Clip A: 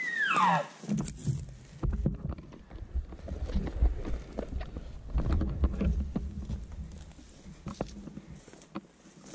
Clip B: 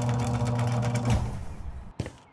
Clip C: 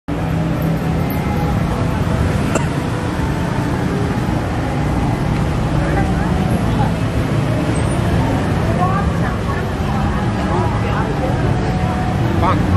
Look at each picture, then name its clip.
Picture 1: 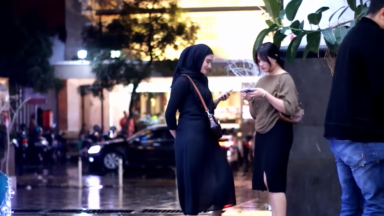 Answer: C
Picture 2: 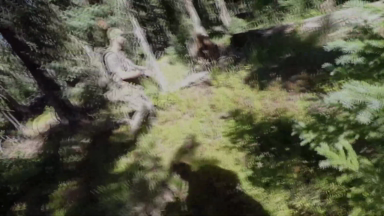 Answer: A